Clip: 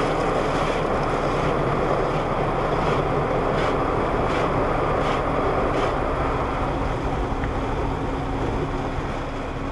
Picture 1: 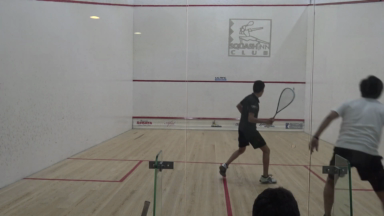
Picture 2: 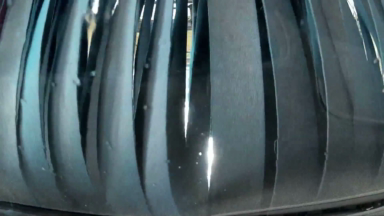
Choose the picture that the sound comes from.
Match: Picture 2